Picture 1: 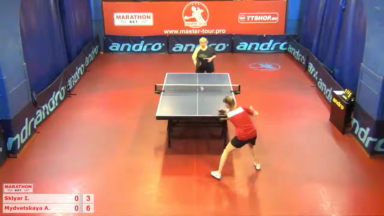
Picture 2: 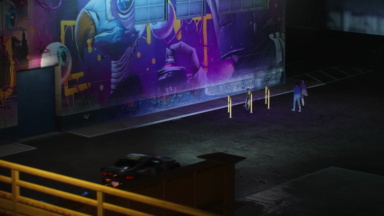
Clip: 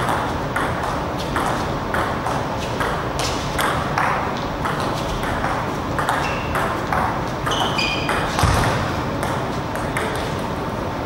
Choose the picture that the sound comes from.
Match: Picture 1